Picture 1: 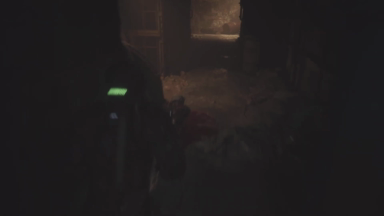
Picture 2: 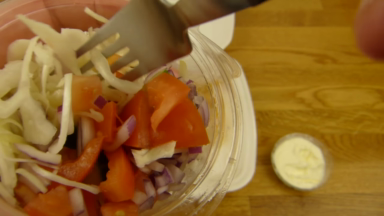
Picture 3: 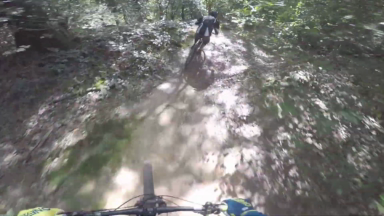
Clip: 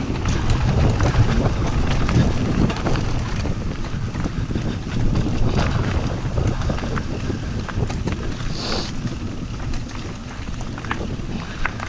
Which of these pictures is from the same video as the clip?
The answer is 3